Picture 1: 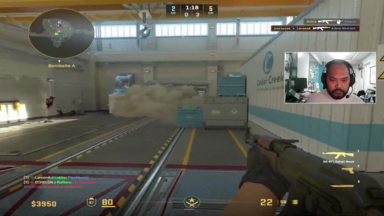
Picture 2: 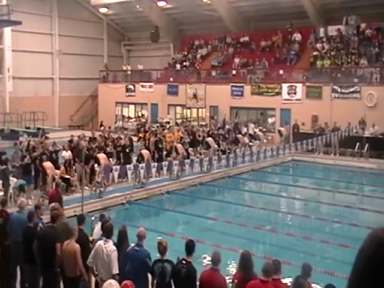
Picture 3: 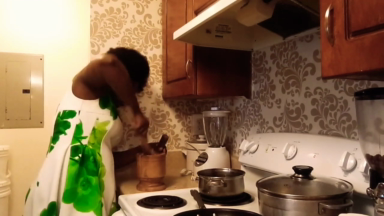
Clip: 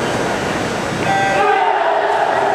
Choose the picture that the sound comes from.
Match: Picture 2